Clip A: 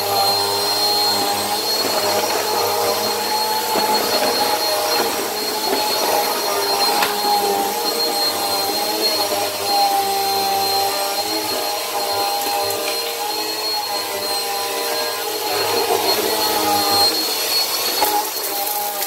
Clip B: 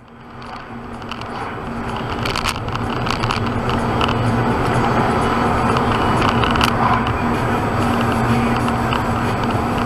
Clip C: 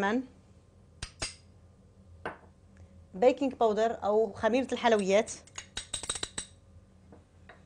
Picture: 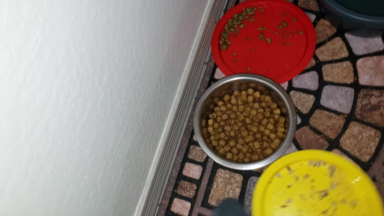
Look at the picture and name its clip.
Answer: A